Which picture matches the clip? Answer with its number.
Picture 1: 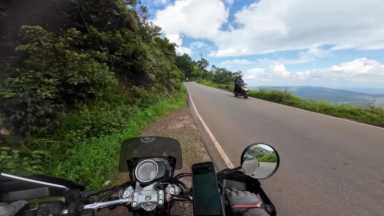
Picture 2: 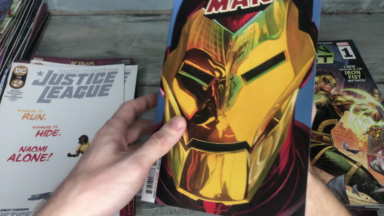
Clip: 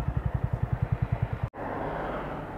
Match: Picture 1